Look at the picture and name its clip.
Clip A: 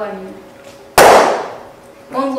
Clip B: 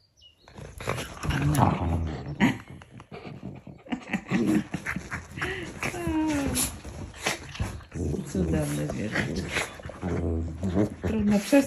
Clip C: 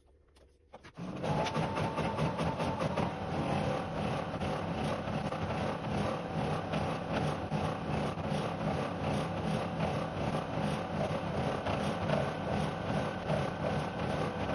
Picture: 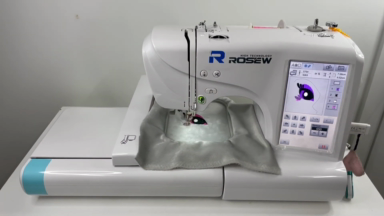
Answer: C